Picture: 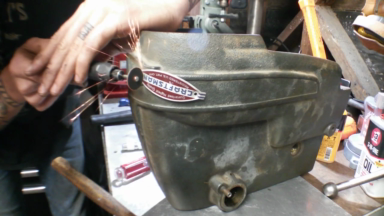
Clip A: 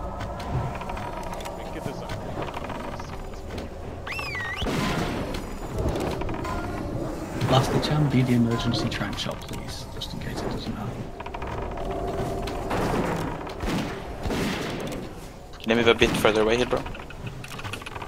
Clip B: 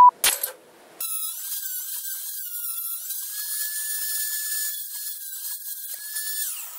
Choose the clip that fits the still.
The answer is B